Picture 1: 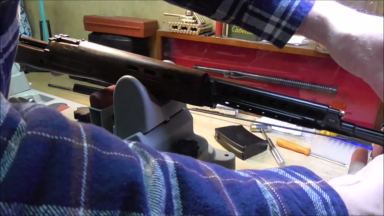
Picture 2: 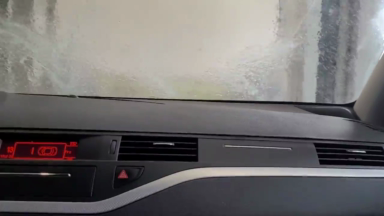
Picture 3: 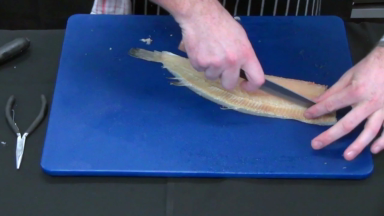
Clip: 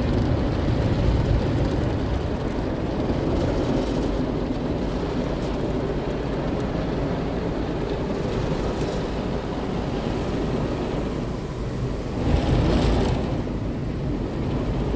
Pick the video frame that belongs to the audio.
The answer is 2